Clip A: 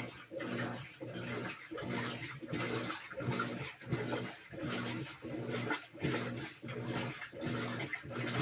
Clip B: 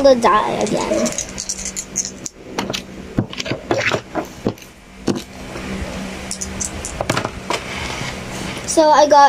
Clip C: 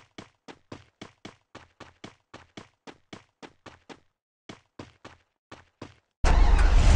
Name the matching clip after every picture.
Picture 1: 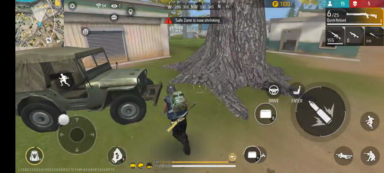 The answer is C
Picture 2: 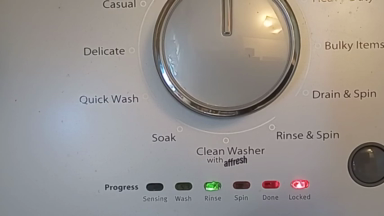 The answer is A